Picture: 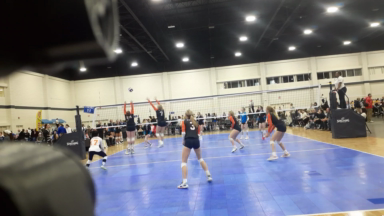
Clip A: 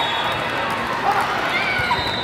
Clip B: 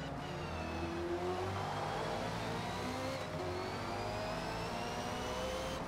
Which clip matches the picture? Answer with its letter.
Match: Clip A